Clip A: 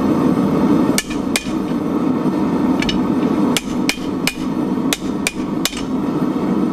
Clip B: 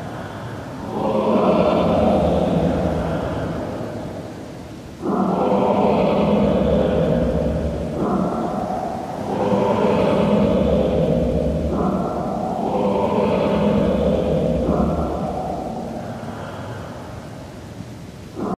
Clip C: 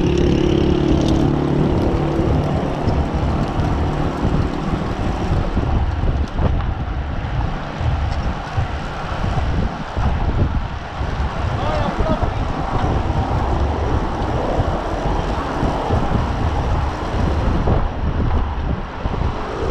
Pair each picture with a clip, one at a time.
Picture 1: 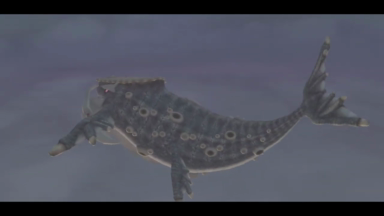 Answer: B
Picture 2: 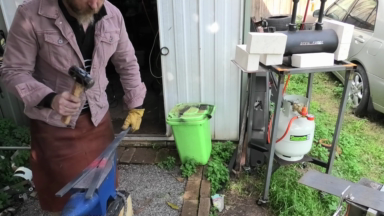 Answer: A